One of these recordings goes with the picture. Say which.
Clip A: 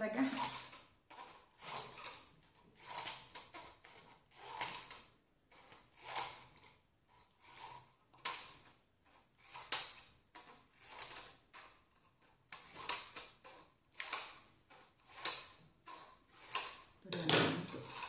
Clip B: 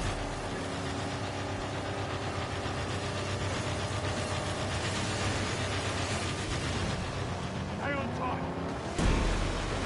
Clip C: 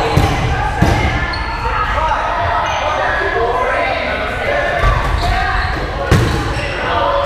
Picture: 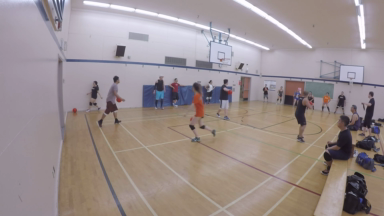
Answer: C